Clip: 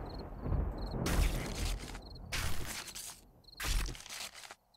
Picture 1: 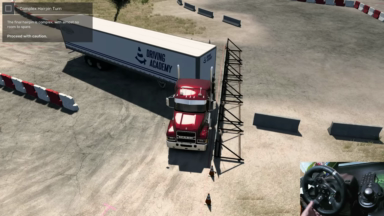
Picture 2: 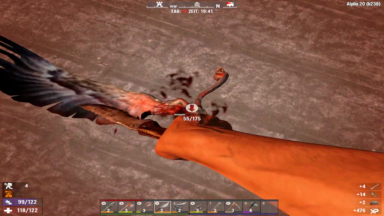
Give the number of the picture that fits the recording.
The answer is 2